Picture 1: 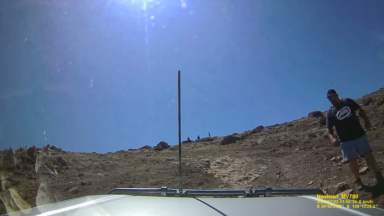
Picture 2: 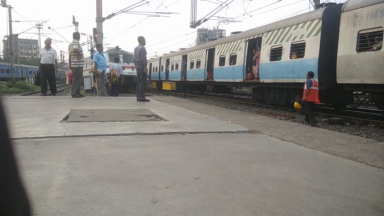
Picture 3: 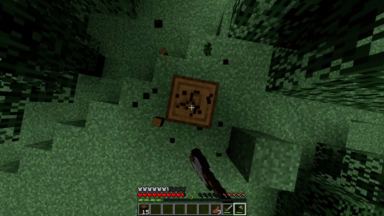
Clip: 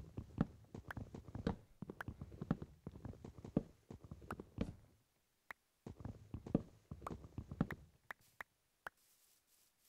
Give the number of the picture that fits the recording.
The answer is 3